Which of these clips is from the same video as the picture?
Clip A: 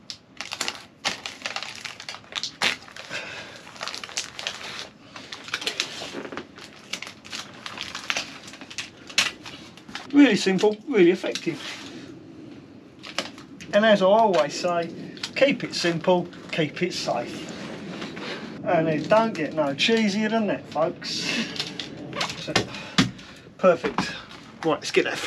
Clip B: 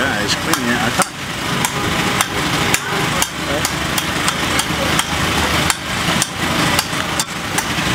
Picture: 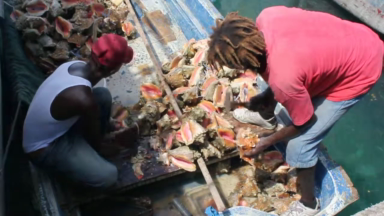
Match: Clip B